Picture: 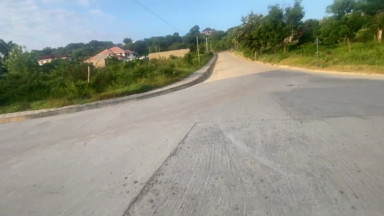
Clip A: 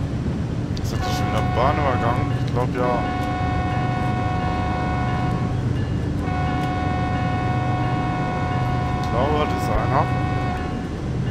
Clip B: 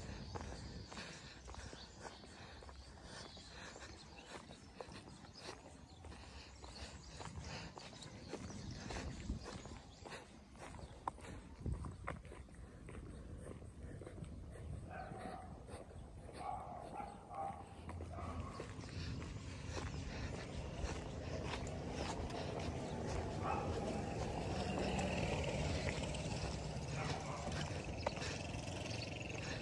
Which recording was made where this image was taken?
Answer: B